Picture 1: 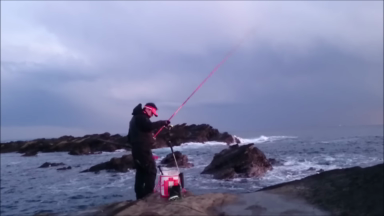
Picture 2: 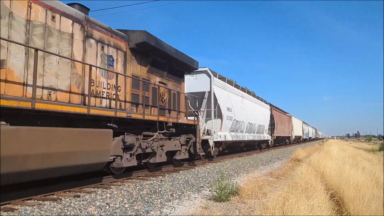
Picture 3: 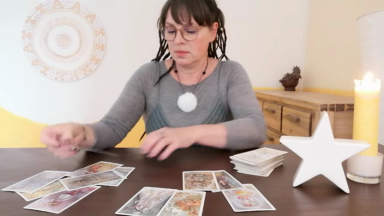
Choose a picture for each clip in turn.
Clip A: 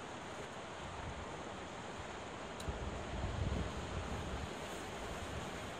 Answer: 1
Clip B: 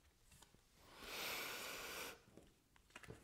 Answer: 3